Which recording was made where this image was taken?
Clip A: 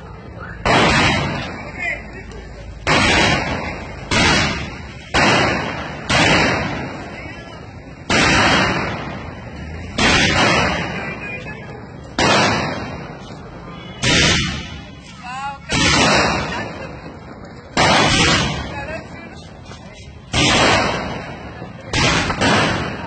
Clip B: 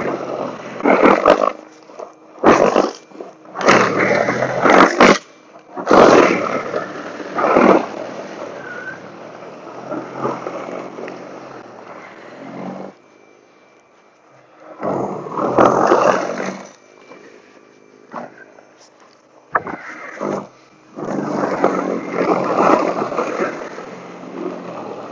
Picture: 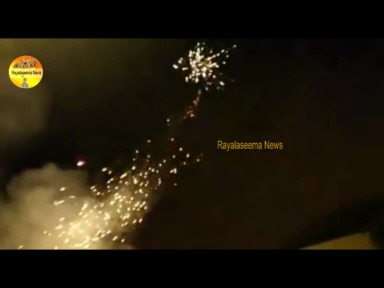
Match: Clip A